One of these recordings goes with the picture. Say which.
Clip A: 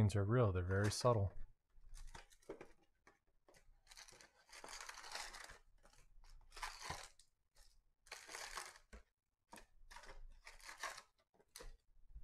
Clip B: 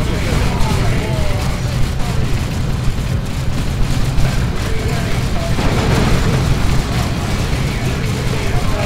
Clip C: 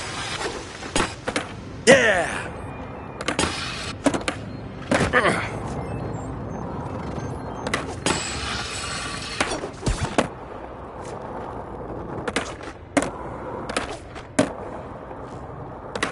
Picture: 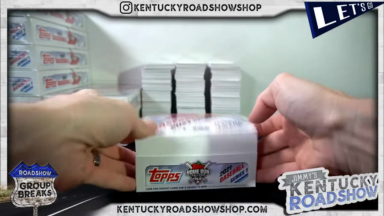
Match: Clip A